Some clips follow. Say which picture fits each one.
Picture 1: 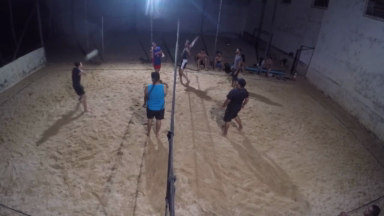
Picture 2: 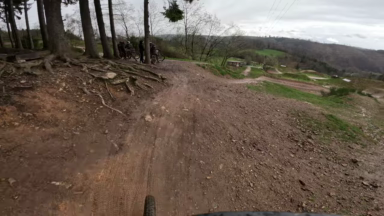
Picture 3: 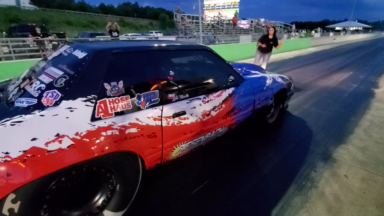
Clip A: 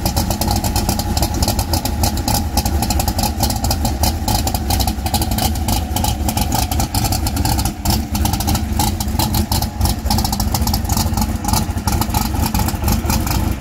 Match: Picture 3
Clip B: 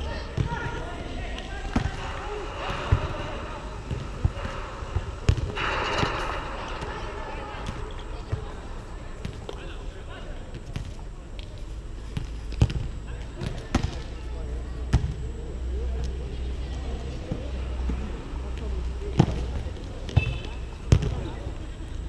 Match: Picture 1